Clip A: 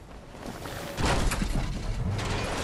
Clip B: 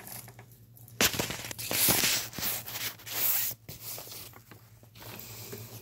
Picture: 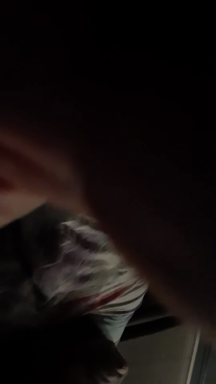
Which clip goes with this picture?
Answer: B